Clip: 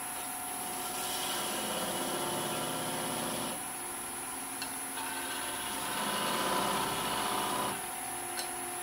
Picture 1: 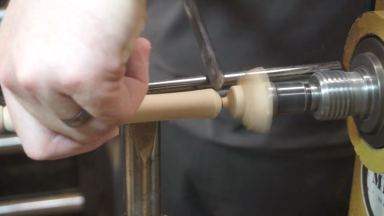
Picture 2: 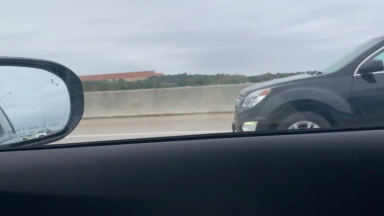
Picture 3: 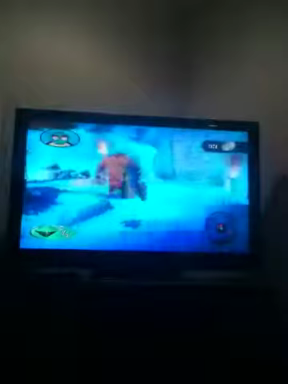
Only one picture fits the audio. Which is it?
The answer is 1